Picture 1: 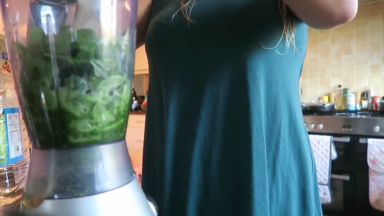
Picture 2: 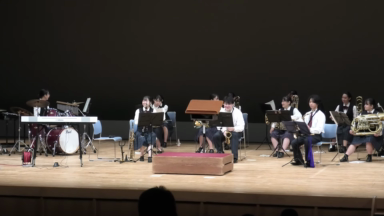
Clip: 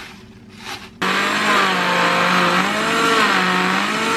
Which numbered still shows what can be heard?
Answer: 1